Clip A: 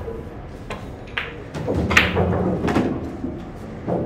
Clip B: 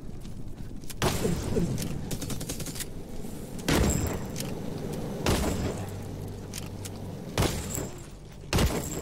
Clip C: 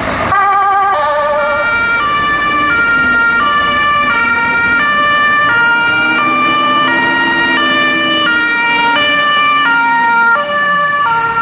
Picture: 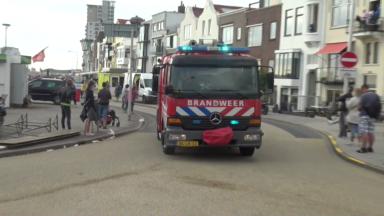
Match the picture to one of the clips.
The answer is C